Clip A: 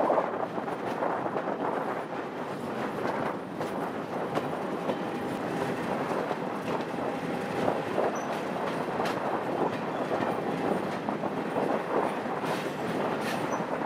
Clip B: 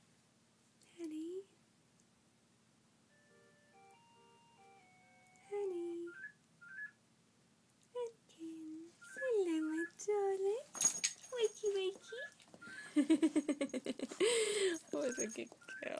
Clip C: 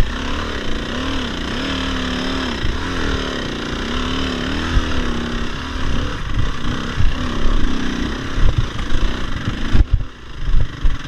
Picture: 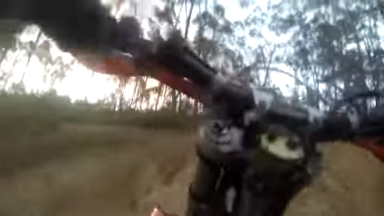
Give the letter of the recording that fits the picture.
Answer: C